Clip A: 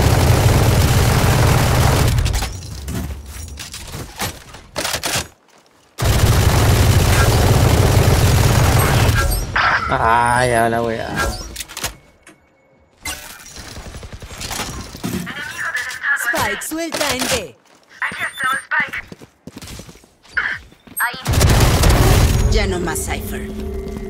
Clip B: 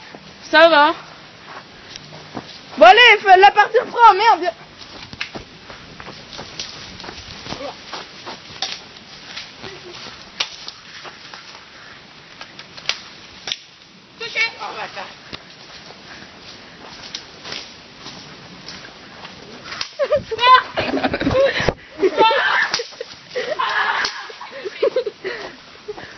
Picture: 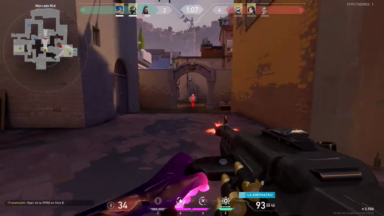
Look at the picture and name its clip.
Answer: A